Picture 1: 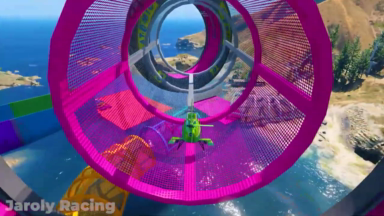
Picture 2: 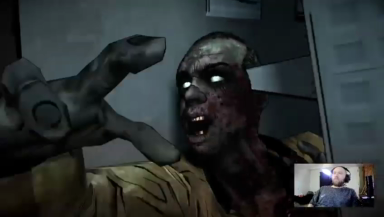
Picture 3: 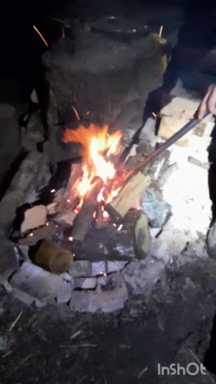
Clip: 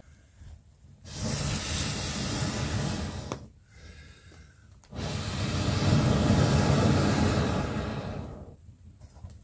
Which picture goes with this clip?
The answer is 3